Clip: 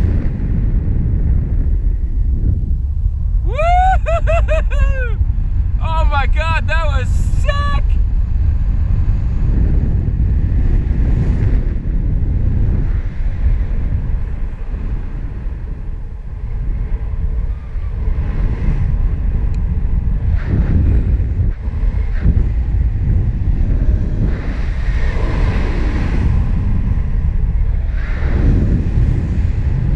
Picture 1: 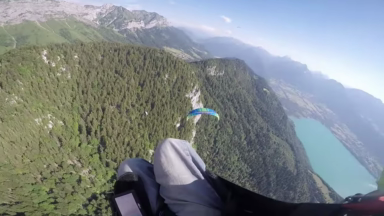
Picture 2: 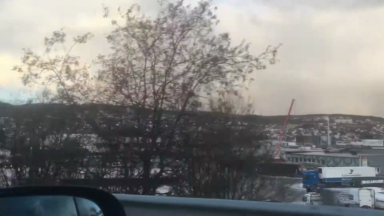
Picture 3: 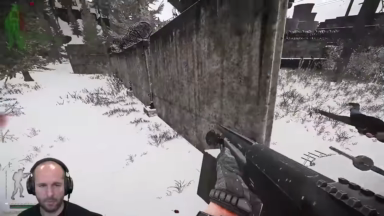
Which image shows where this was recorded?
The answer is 1